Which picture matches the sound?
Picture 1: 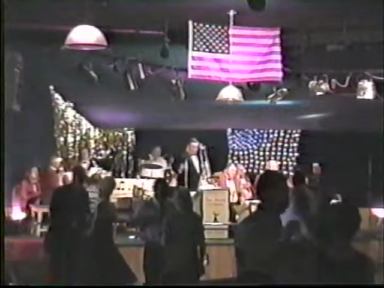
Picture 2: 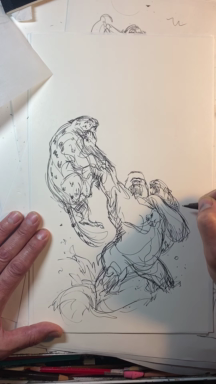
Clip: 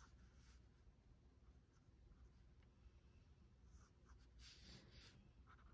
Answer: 2